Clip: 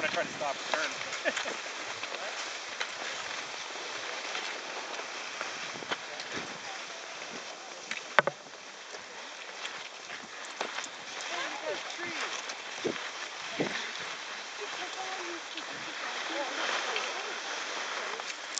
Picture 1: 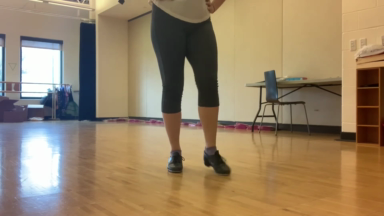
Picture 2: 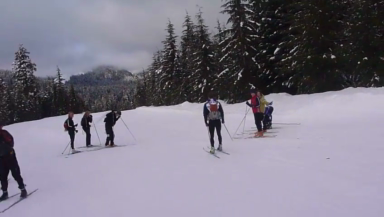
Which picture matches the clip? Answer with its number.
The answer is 2